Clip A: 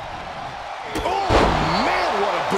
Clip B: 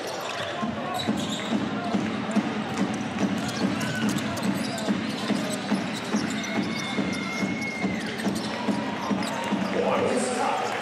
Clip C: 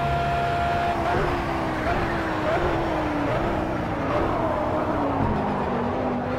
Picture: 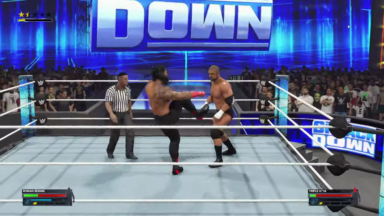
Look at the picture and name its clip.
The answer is A